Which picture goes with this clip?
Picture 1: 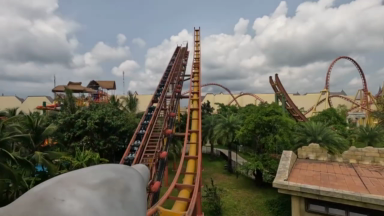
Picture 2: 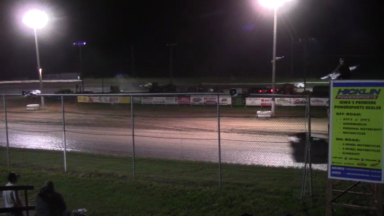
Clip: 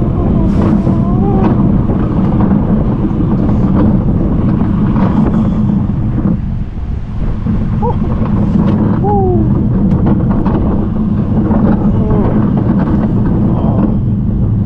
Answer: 1